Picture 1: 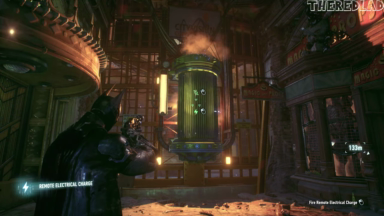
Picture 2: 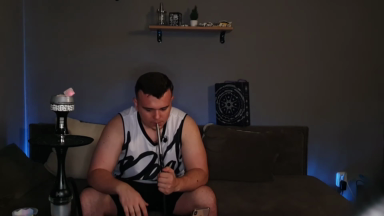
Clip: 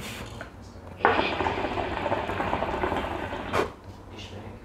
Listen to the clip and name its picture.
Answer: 2